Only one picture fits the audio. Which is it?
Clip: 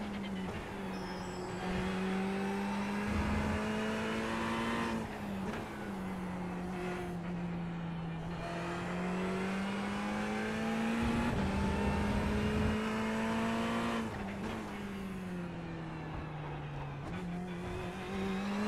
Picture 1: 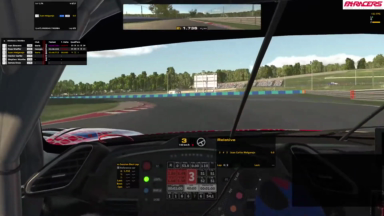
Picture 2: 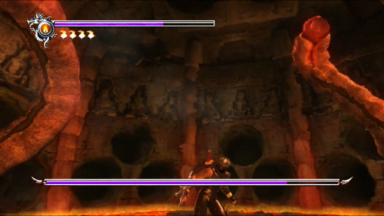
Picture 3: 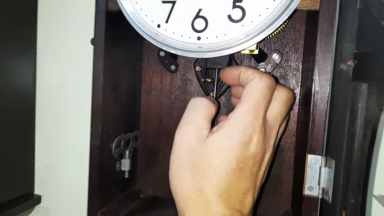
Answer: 1